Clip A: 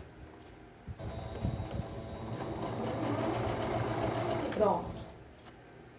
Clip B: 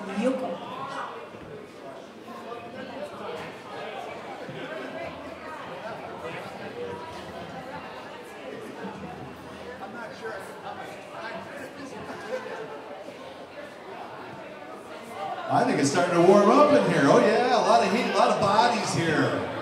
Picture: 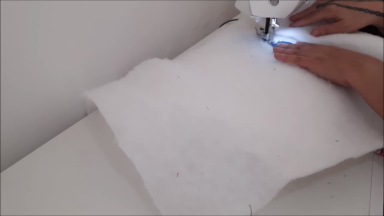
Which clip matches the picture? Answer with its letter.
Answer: A